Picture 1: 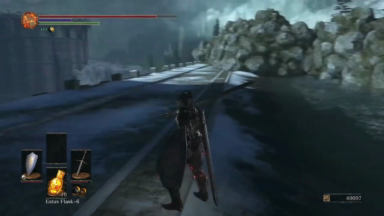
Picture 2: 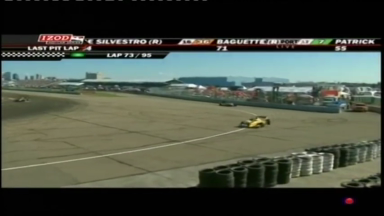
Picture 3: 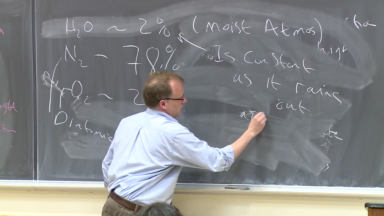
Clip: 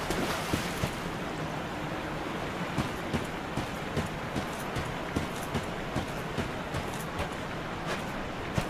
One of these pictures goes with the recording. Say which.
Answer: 1